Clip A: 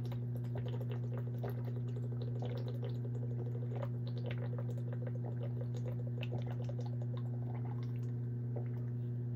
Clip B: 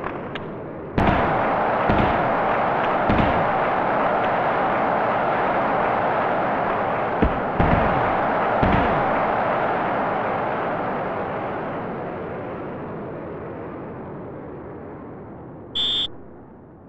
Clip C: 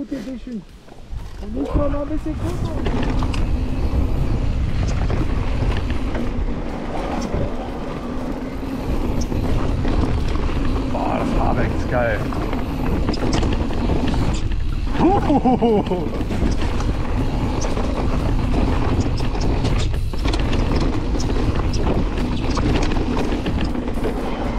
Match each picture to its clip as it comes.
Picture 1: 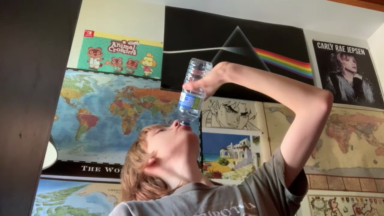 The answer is A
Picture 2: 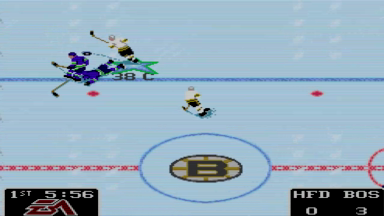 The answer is B